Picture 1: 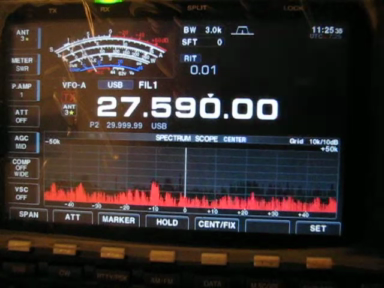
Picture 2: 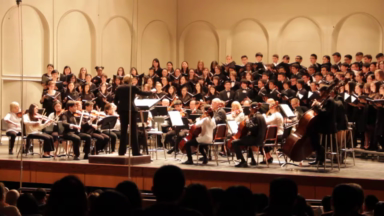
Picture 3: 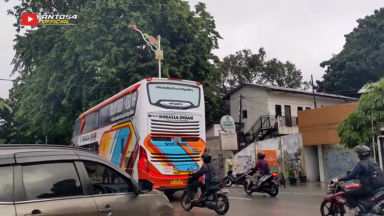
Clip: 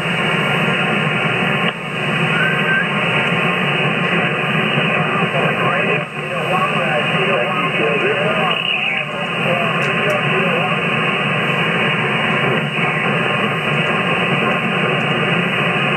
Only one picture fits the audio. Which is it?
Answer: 1